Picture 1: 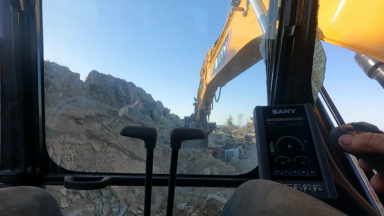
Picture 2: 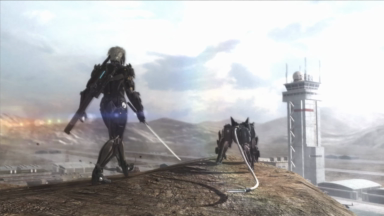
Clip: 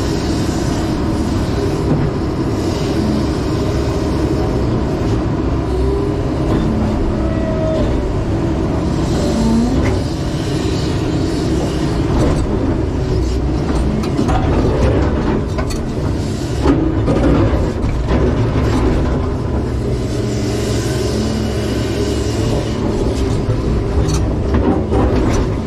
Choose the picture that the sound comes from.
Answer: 1